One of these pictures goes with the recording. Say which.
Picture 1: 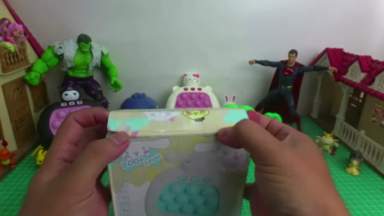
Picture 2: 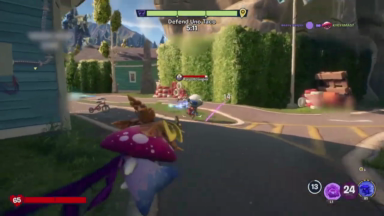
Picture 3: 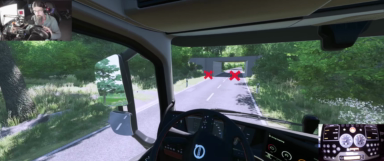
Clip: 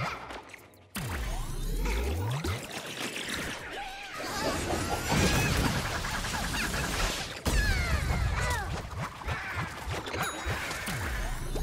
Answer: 2